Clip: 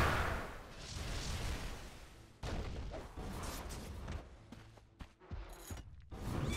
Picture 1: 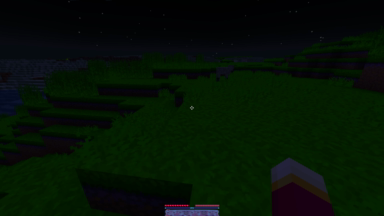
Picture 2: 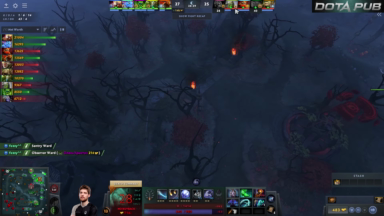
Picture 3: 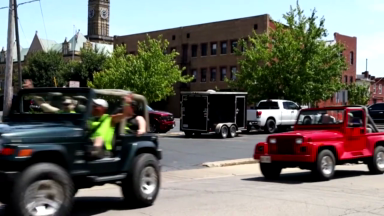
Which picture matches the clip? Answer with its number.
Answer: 2